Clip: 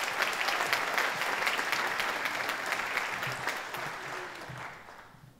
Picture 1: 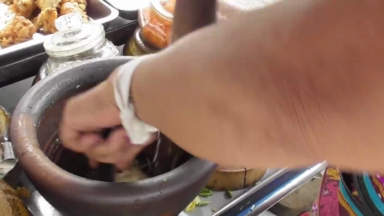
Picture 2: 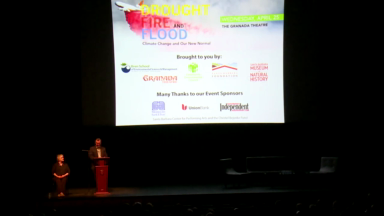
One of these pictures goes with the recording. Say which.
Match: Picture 2